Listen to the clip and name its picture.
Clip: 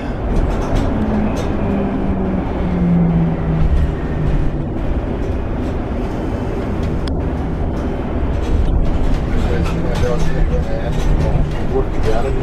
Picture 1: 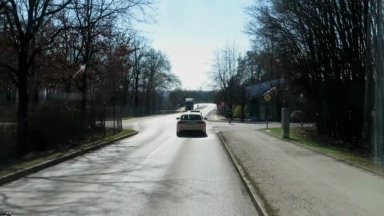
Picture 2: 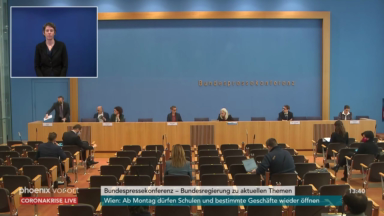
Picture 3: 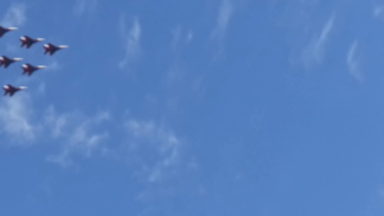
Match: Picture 1